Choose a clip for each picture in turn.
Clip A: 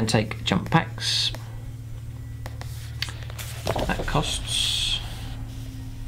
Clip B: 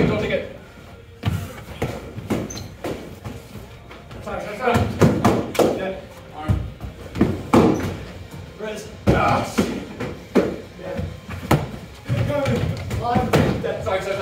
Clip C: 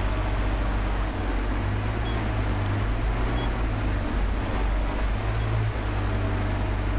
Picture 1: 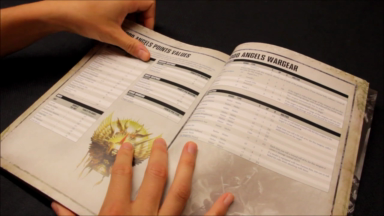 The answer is A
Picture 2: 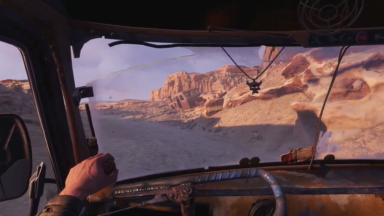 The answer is C